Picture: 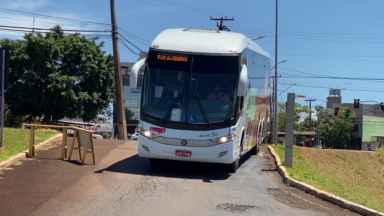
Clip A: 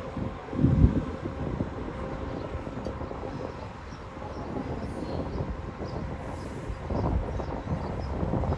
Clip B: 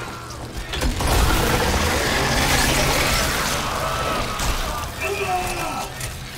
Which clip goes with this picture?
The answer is A